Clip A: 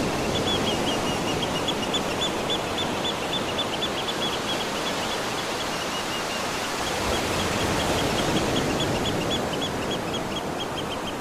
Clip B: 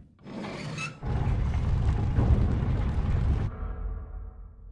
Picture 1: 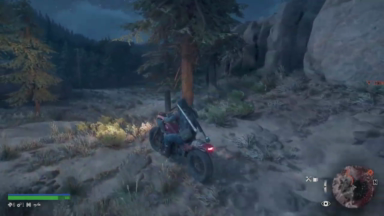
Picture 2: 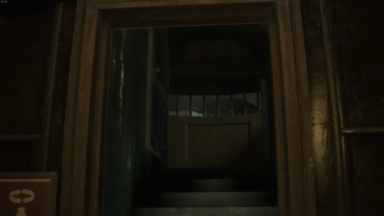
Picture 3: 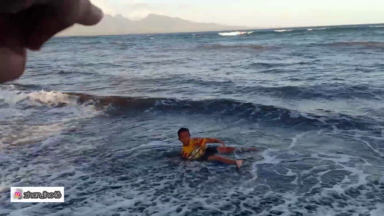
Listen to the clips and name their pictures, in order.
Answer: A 3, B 2